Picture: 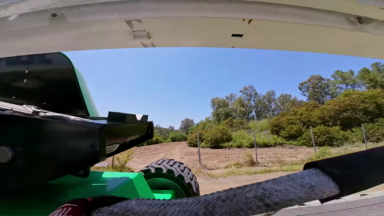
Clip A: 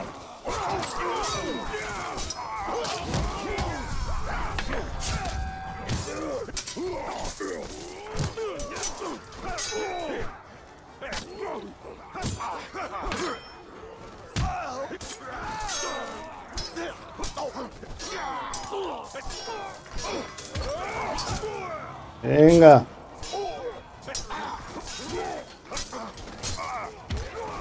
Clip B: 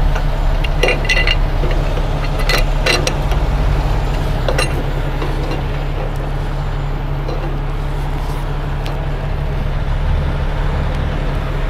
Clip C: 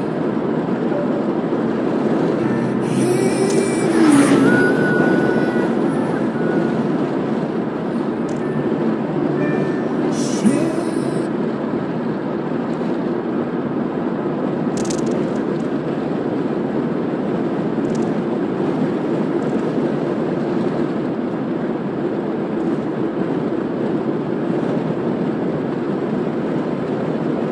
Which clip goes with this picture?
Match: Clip B